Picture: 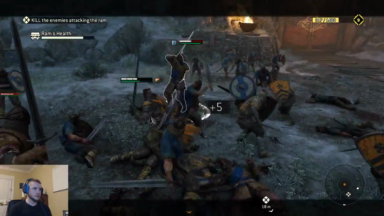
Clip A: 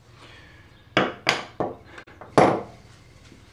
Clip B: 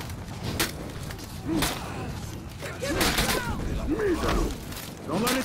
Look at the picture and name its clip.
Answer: B